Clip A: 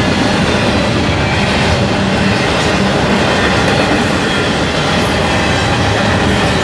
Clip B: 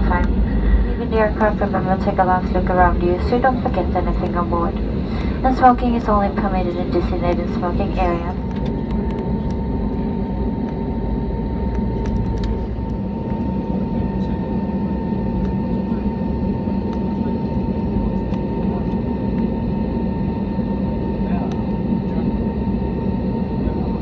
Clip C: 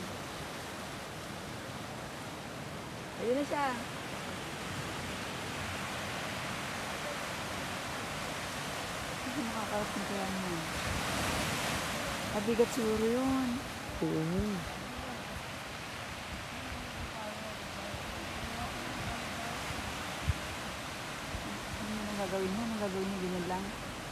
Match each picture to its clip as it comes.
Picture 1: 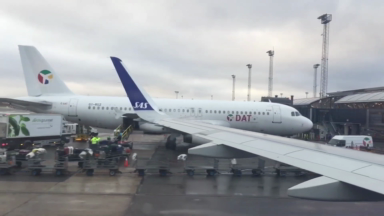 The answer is B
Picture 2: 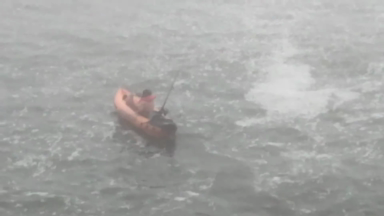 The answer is C